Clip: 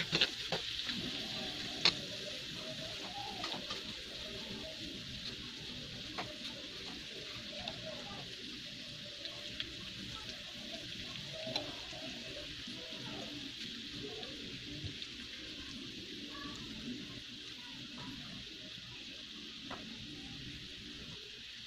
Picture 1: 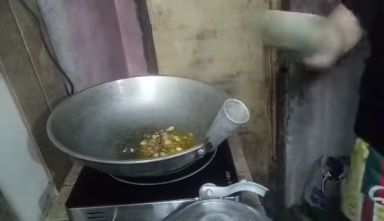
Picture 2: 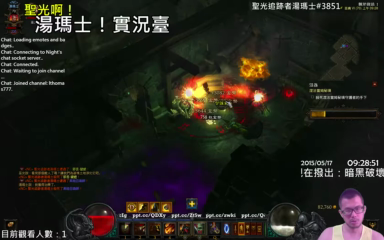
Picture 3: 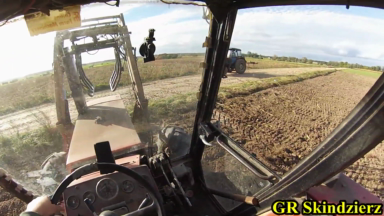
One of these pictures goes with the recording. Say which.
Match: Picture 1